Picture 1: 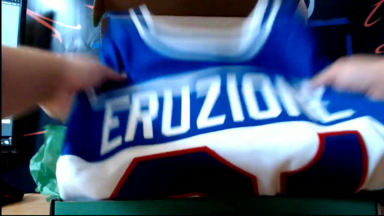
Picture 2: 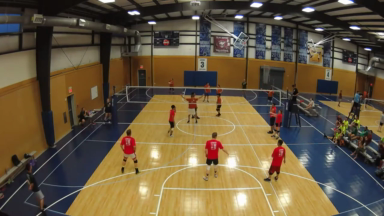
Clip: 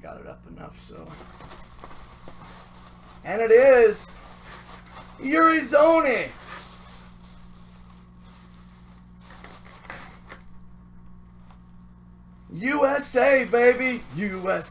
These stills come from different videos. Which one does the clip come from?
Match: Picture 1